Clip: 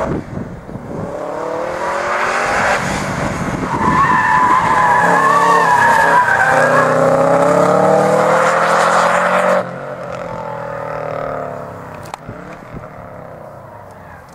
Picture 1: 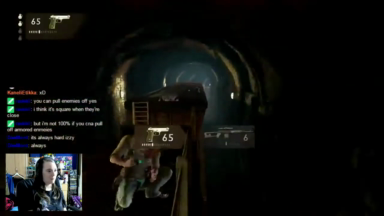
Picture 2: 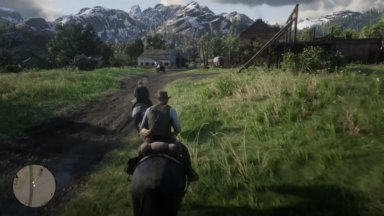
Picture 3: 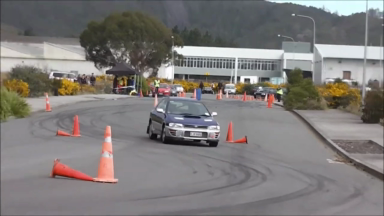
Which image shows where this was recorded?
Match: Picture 3